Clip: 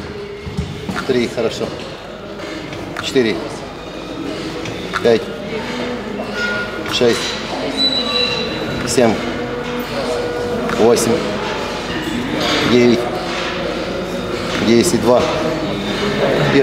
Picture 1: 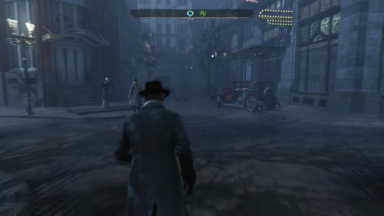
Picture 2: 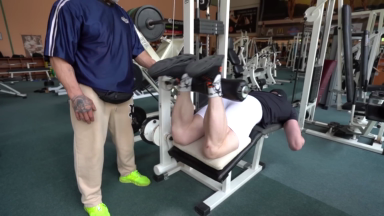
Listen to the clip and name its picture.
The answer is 2